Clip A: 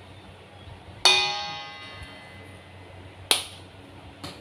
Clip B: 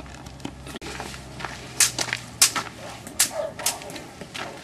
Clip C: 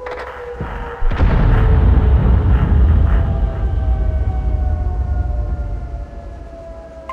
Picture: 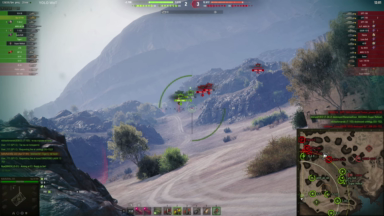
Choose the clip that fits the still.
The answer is C